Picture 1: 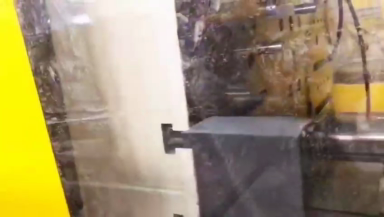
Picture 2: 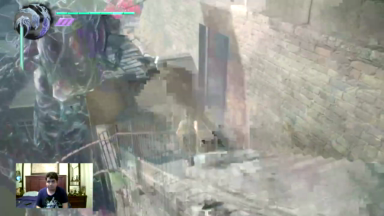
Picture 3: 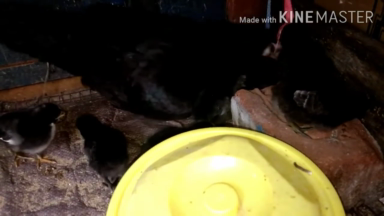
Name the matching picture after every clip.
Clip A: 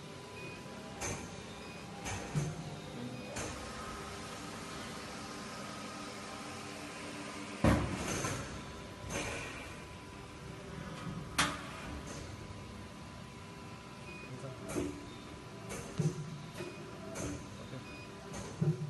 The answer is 1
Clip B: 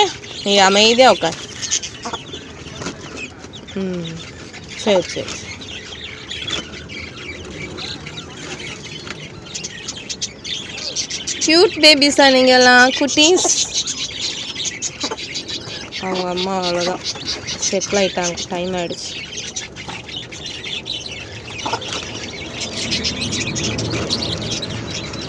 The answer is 3